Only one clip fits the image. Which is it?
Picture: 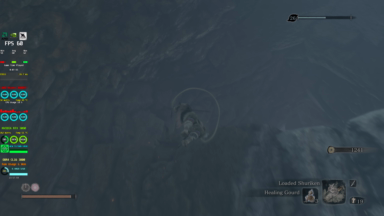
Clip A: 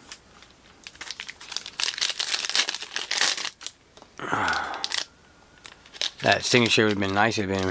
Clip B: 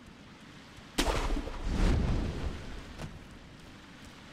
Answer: B